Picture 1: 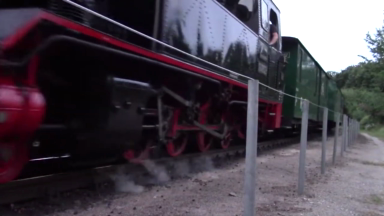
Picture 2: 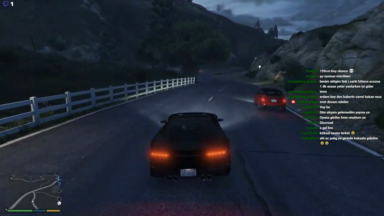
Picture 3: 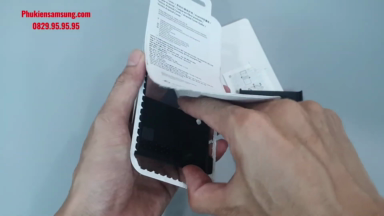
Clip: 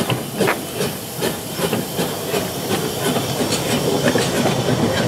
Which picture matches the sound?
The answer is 1